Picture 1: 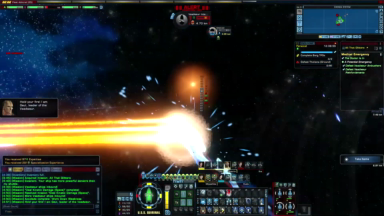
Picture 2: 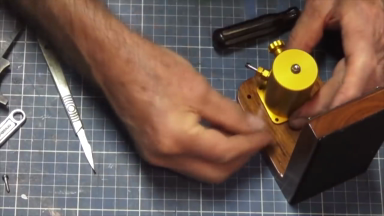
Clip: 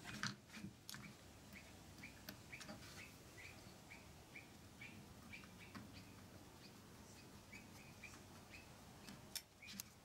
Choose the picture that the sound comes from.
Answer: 2